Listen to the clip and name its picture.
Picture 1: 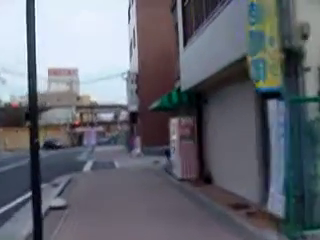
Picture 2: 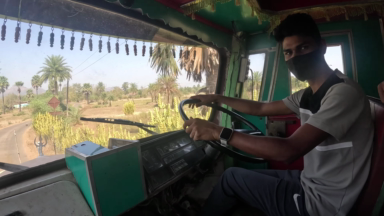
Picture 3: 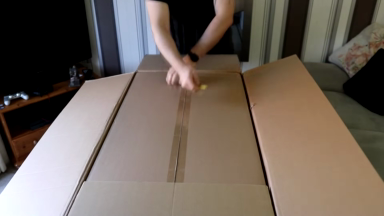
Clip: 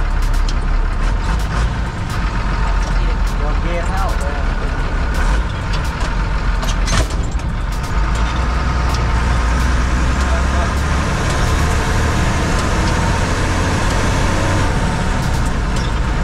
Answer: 2